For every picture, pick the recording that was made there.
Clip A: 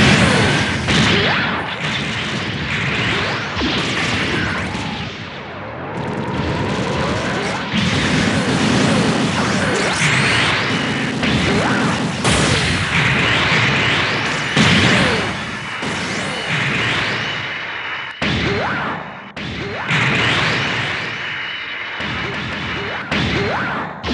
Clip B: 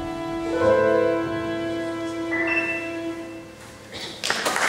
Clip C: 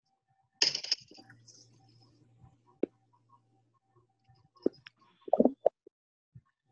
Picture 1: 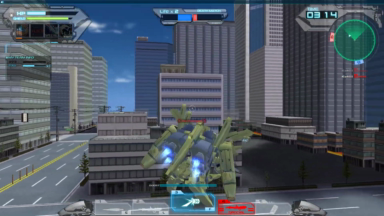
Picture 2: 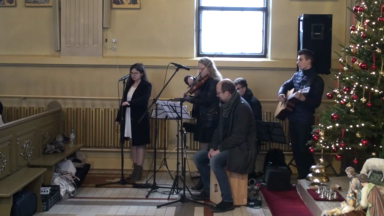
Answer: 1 A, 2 B